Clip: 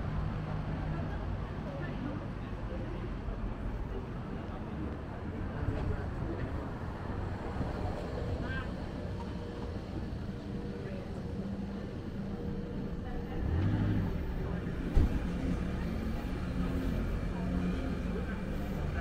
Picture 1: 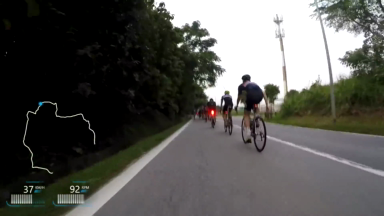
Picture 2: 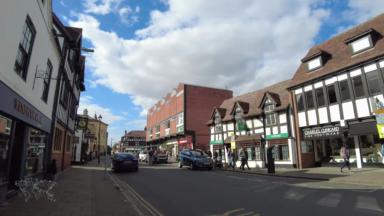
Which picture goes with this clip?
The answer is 2